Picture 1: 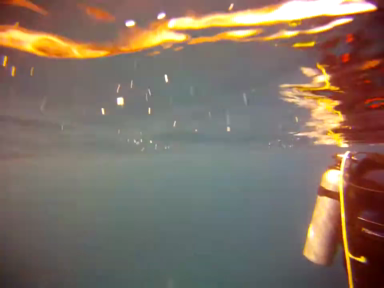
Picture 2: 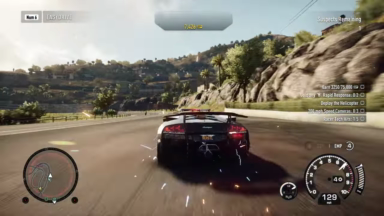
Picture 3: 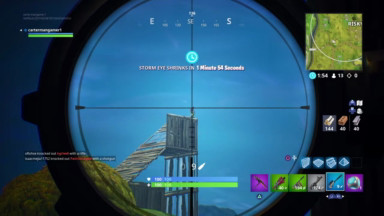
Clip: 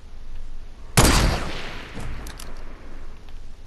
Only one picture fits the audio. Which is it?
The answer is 3